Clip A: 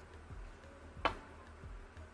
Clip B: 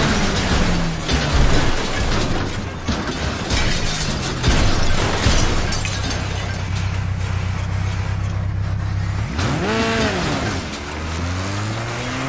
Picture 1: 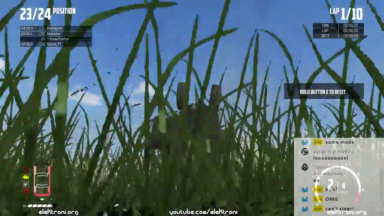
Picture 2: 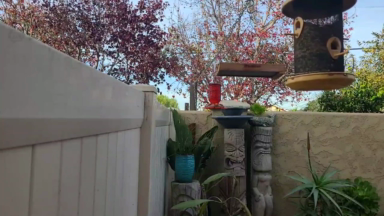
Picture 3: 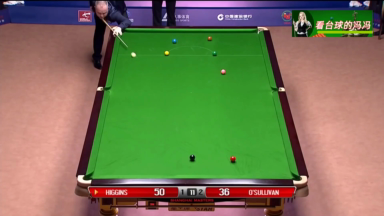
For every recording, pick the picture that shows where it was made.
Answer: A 3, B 1